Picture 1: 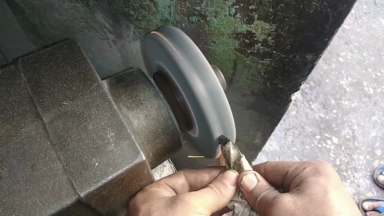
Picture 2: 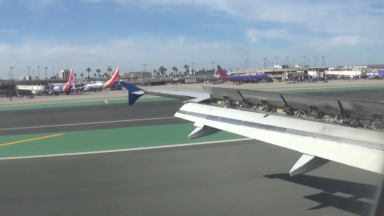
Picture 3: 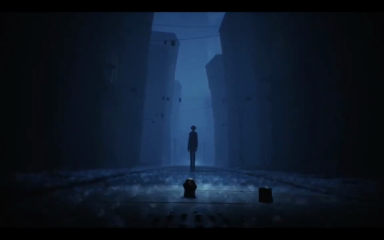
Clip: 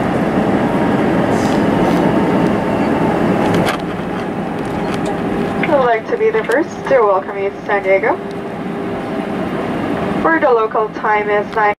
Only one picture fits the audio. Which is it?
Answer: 2